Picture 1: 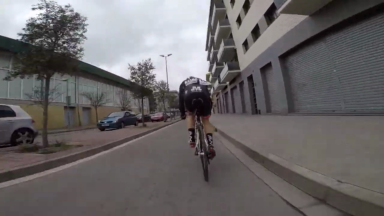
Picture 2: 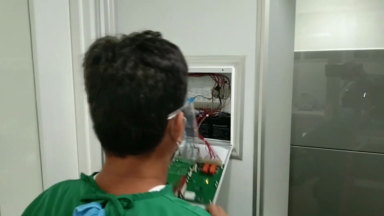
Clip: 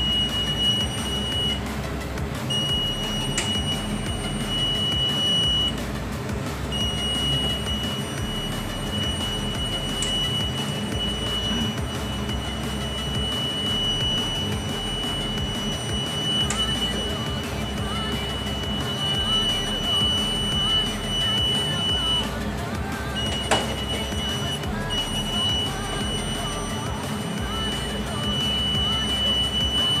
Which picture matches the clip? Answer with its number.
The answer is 2